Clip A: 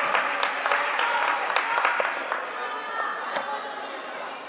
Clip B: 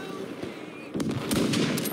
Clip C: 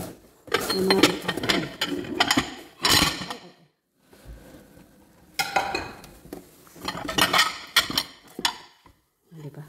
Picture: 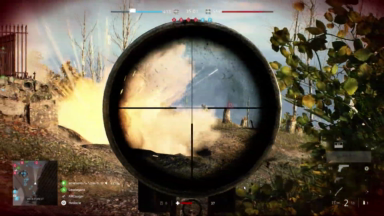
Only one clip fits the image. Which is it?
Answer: B